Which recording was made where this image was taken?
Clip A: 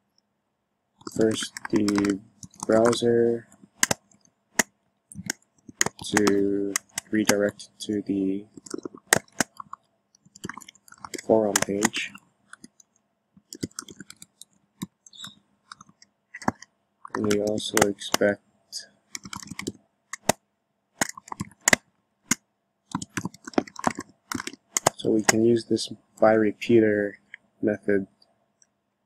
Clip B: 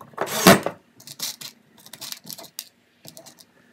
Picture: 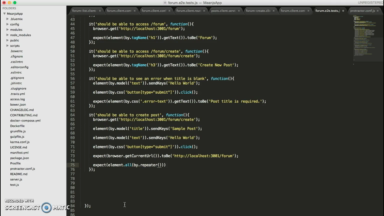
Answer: A